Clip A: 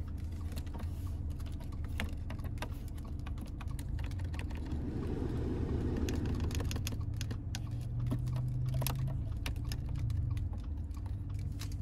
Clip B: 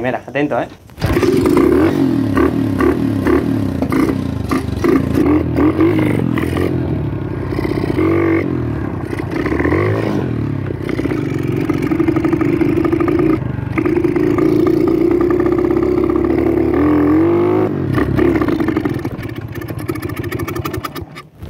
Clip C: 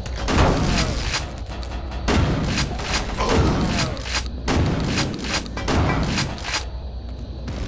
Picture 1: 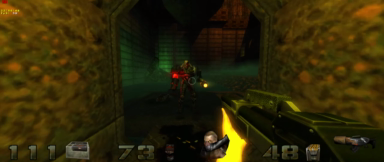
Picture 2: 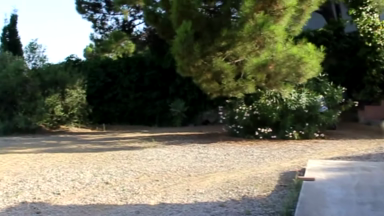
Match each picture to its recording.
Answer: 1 C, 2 B